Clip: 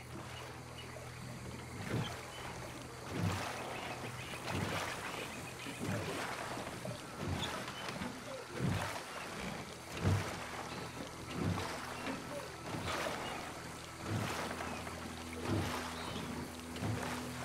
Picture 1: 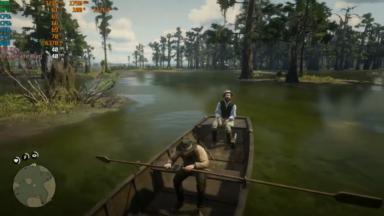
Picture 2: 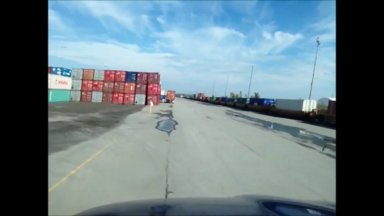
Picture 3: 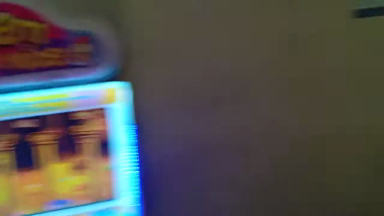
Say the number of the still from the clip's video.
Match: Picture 1